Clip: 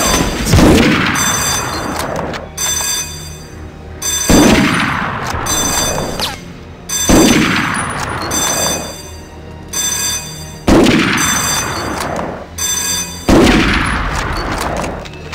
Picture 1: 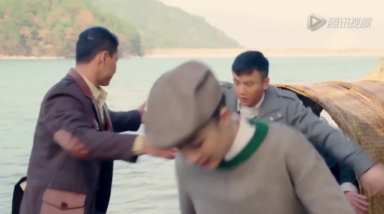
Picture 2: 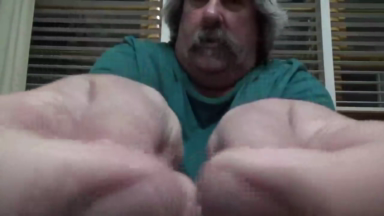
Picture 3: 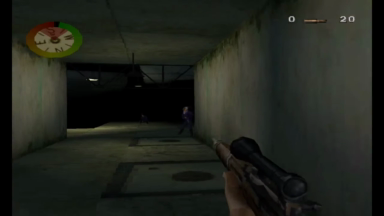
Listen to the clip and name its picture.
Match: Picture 3